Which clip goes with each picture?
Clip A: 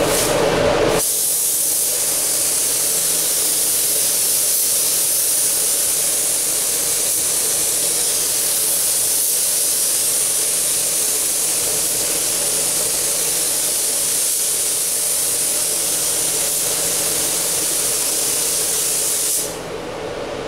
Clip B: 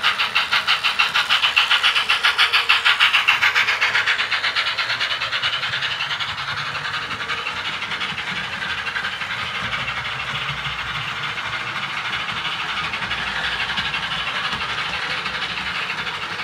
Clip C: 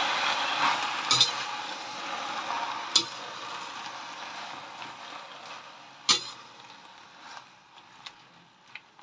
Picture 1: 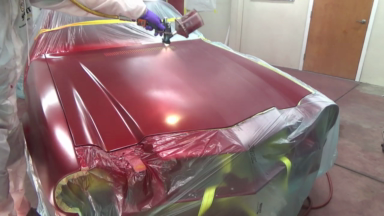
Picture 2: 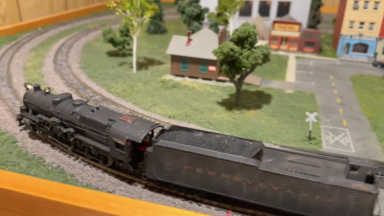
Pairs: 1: A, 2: B